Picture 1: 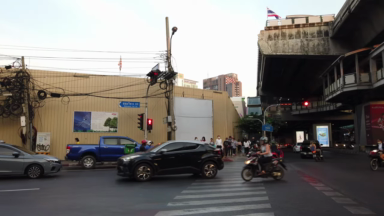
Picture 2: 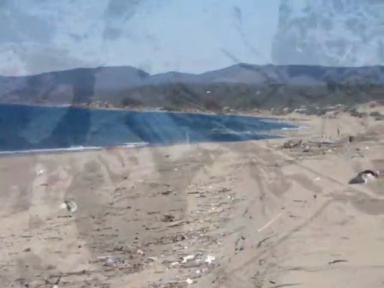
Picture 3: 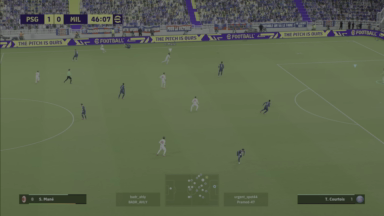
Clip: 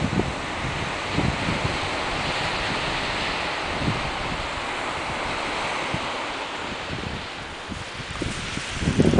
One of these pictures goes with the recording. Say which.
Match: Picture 2